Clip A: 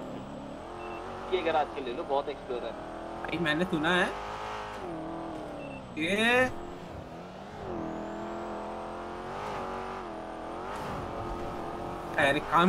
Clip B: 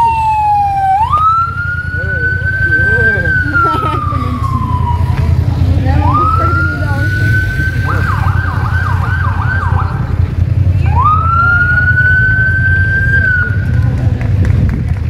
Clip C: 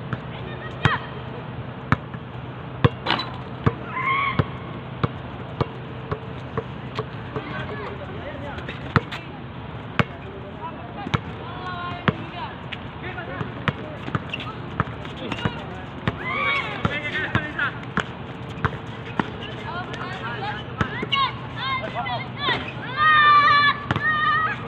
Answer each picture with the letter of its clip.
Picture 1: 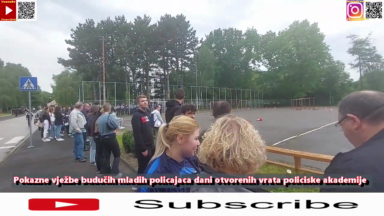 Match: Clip B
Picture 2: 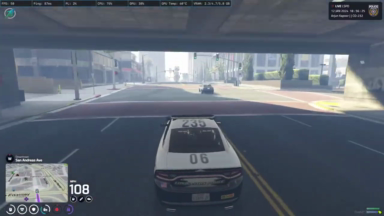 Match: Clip A